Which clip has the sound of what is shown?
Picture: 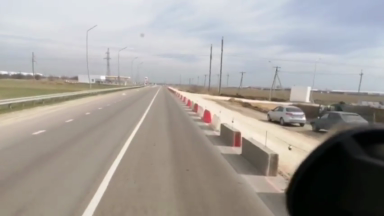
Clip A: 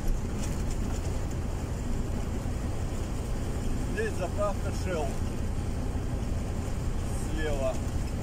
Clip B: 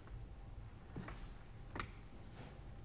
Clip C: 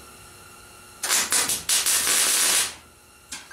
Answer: A